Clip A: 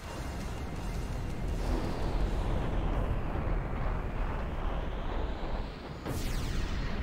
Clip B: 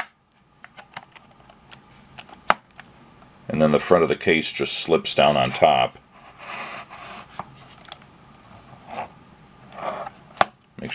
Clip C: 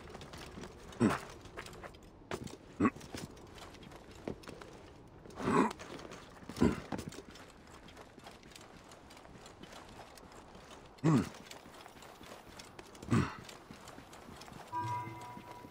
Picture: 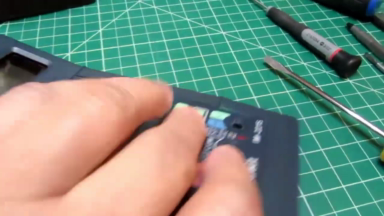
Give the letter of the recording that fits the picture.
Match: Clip B